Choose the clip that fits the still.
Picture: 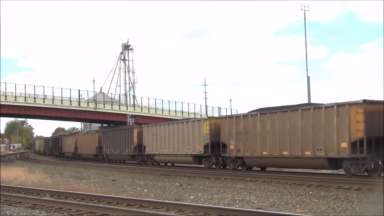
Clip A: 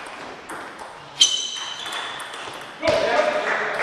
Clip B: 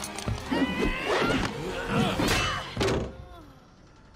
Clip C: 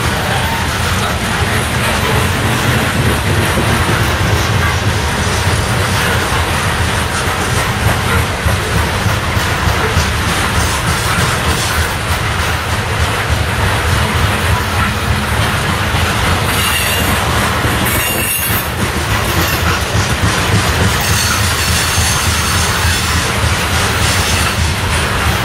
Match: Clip C